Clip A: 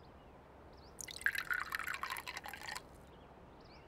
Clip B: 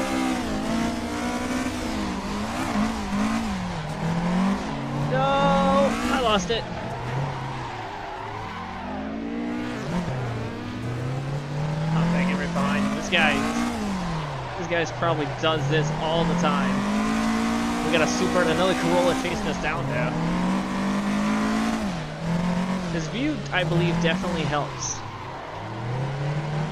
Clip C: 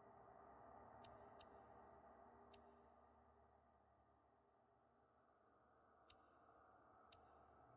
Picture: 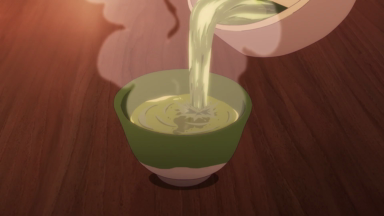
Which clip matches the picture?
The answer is A